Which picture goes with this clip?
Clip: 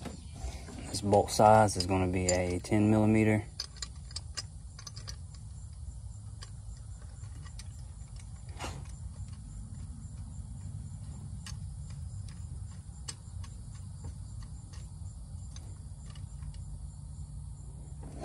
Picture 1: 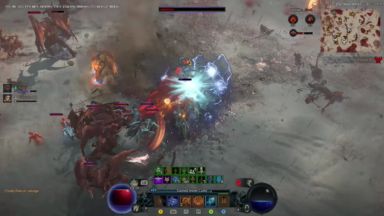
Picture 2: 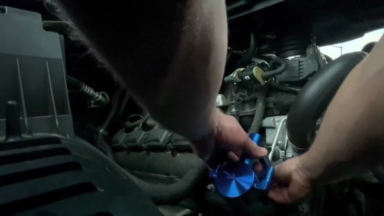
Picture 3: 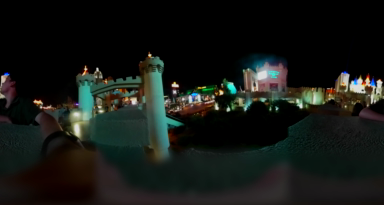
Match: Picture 2